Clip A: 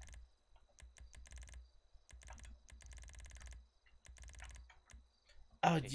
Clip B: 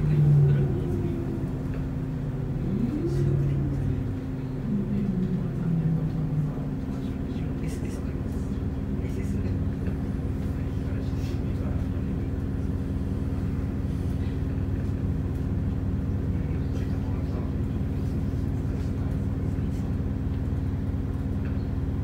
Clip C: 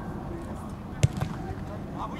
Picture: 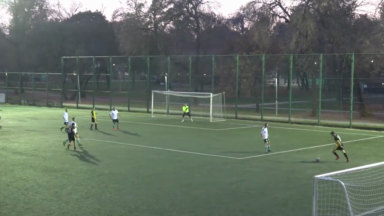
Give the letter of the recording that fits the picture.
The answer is C